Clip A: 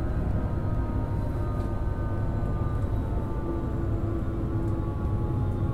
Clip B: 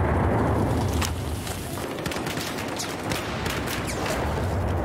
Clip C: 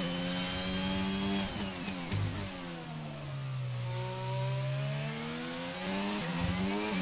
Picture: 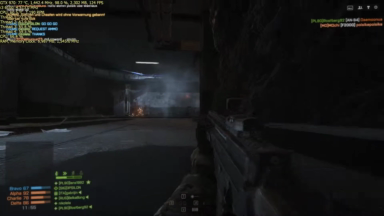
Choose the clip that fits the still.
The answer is B